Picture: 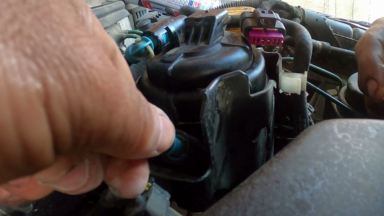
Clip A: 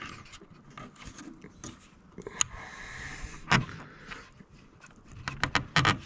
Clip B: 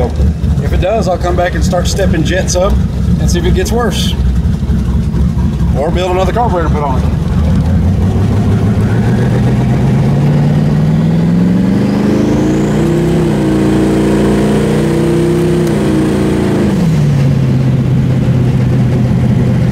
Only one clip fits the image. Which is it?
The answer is A